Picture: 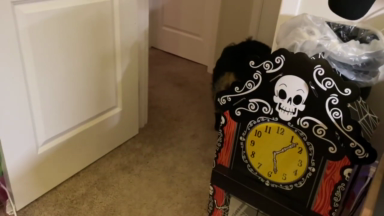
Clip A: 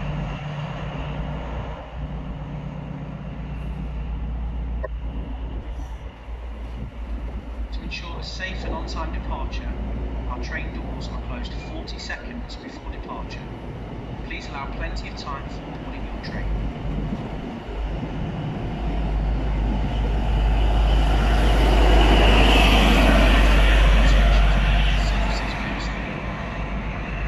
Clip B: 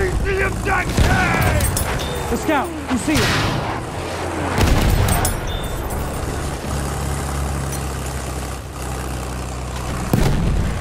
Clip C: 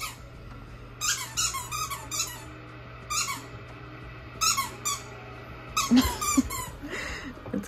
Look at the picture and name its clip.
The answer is C